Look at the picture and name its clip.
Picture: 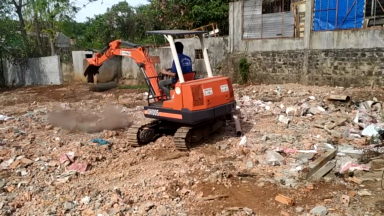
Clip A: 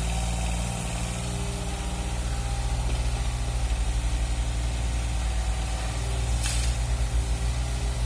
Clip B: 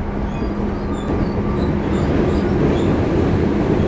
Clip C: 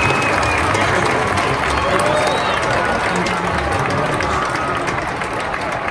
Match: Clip A